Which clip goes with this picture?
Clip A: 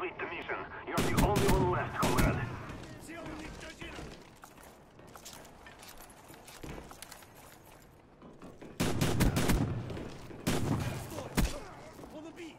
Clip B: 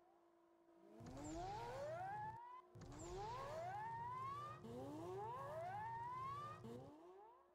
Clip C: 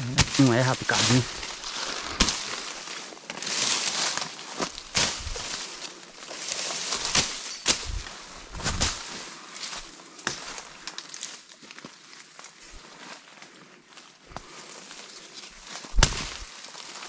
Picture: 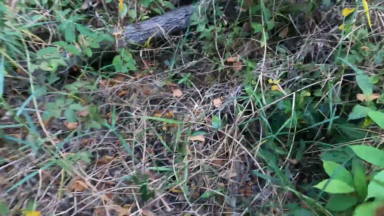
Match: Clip C